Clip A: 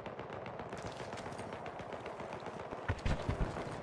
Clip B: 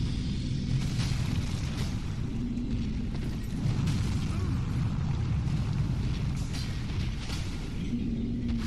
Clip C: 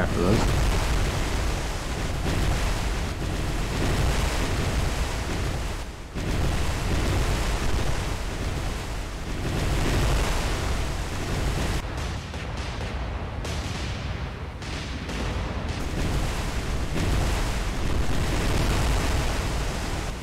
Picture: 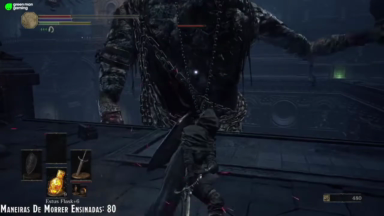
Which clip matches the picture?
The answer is B